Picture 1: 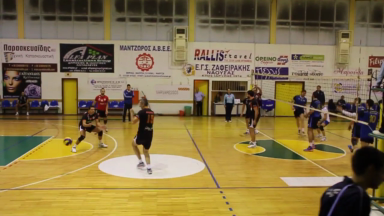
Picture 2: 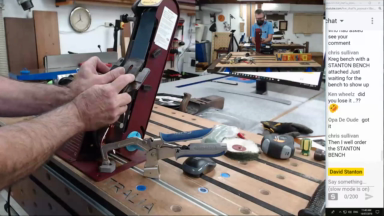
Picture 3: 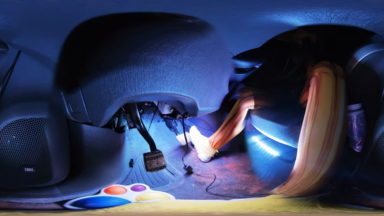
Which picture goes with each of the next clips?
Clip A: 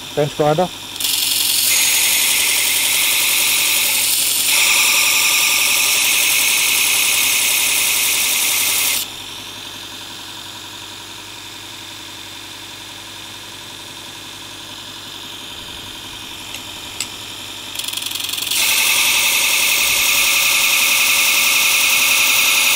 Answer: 2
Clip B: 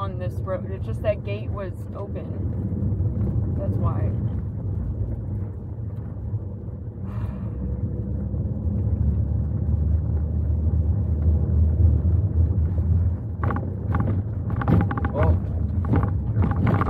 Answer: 3